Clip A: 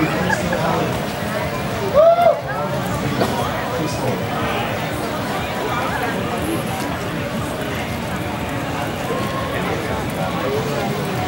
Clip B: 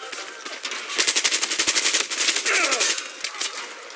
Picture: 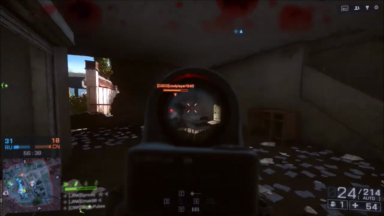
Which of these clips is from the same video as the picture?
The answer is B